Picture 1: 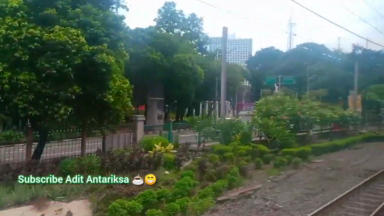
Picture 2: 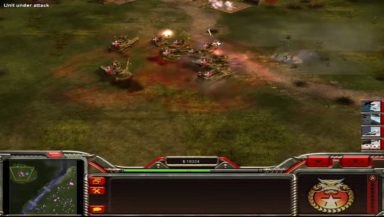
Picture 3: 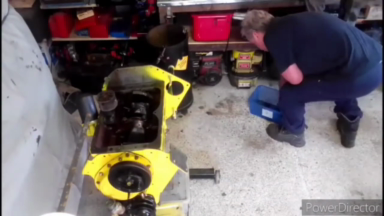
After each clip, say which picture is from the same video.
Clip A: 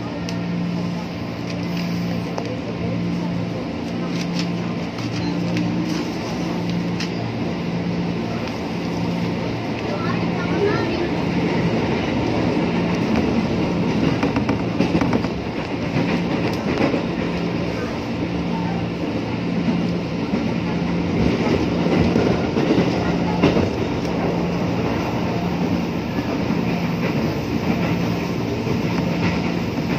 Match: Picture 1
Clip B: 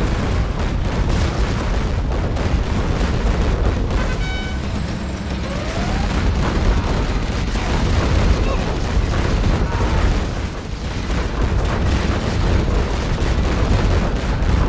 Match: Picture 2